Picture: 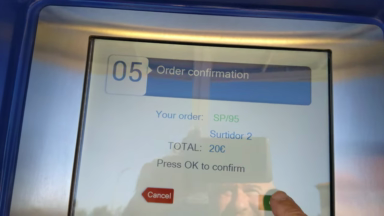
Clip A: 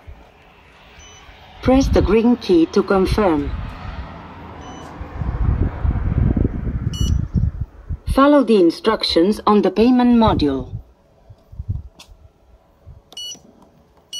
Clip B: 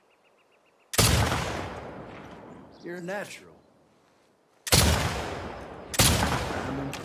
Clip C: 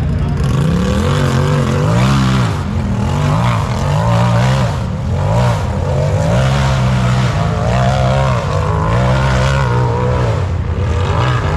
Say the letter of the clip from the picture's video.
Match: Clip A